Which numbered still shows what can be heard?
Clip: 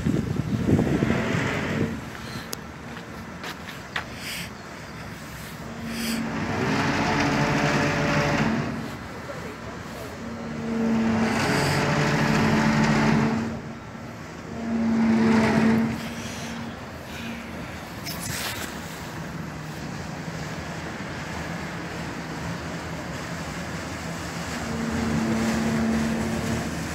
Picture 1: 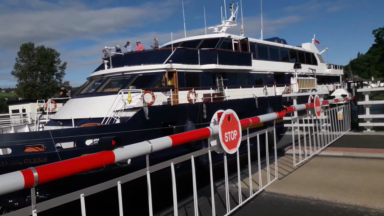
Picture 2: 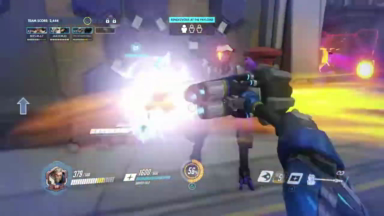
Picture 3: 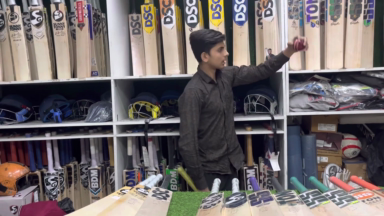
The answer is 1